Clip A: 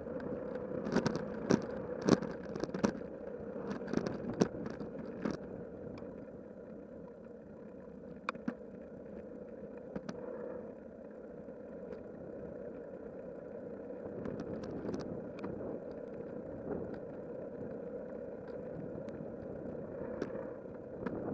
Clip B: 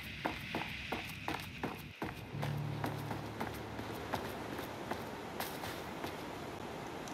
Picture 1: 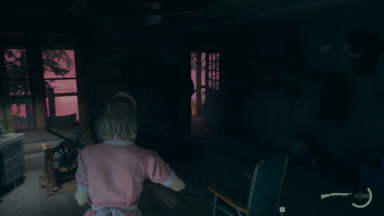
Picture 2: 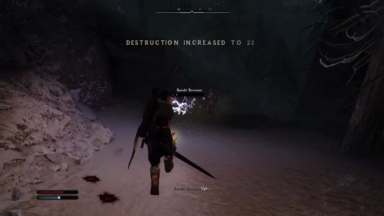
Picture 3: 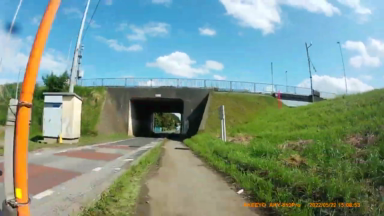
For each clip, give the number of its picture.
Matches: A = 3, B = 1